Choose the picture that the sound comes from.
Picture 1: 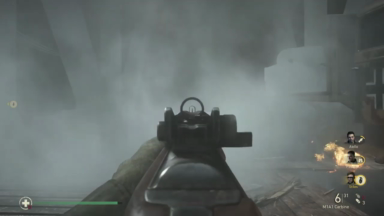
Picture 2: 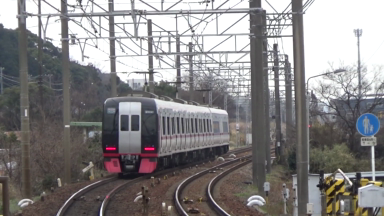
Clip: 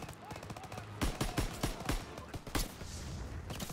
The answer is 1